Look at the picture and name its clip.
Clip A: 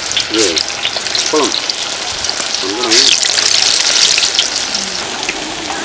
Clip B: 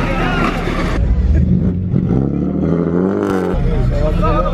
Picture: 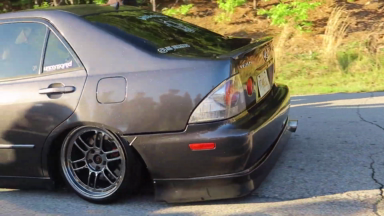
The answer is B